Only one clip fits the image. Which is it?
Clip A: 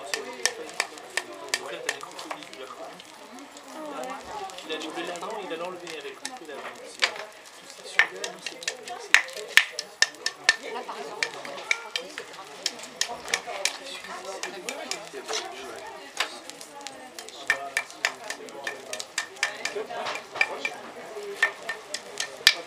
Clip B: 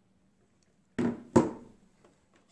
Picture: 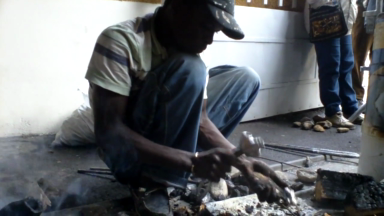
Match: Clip A